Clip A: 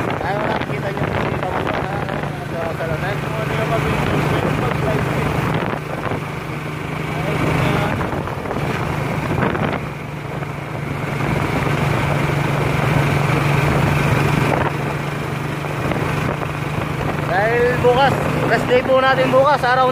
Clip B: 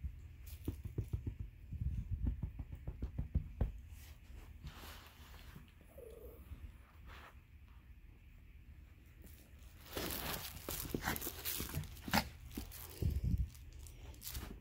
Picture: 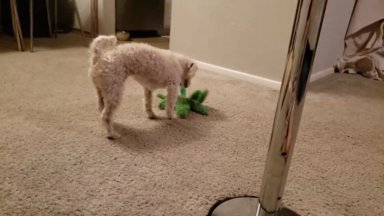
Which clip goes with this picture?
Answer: B